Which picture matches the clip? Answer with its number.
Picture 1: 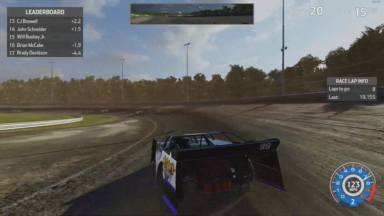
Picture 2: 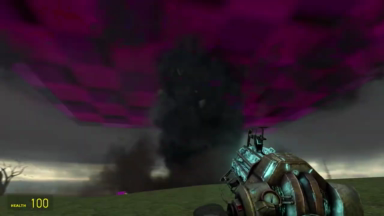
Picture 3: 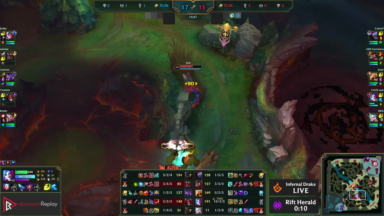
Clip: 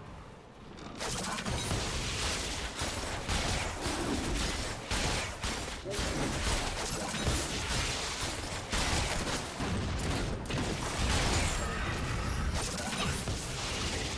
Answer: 3